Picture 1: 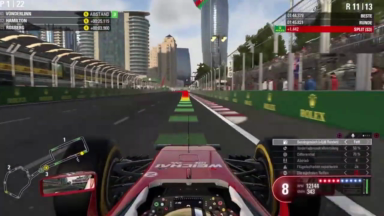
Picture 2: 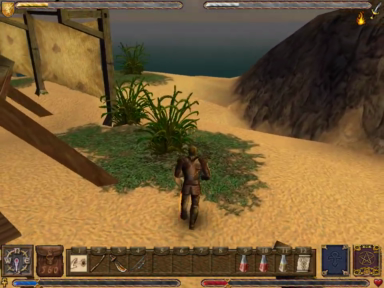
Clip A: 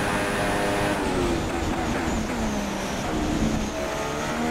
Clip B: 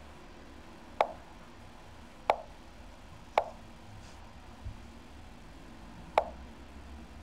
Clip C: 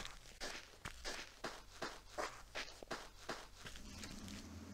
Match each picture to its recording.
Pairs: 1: A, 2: C